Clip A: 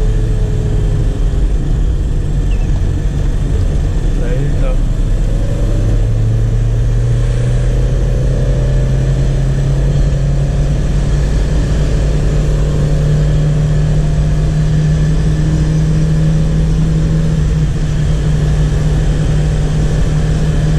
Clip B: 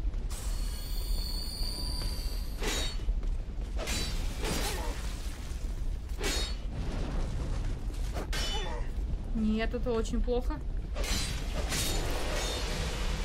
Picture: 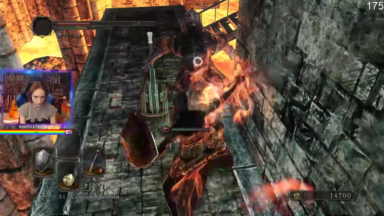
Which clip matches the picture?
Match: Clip B